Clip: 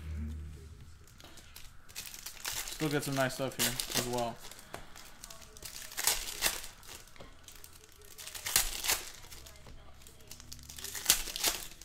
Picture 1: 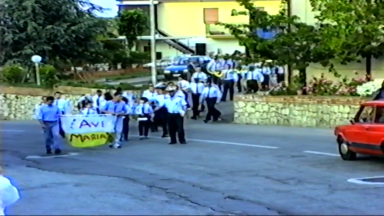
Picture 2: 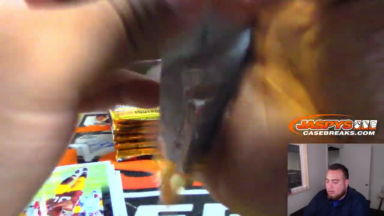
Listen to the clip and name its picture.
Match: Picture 2